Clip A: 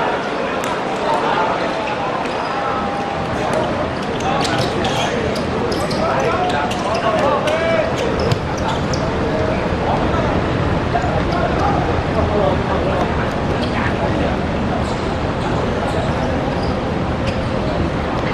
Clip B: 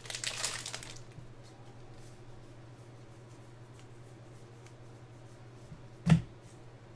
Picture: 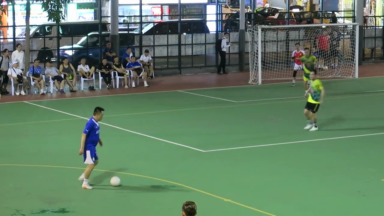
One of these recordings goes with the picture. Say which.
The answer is A